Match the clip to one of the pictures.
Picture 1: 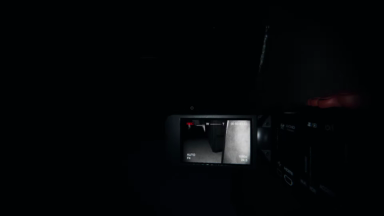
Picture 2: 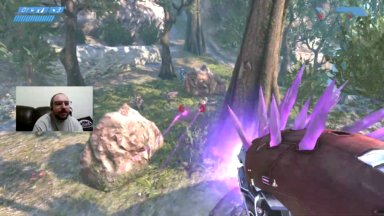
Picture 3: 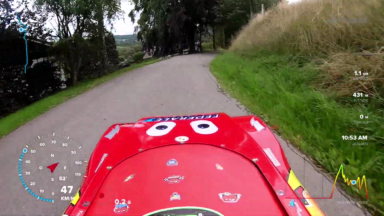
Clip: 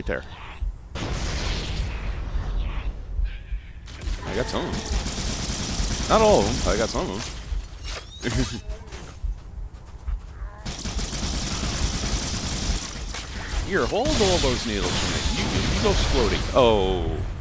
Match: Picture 2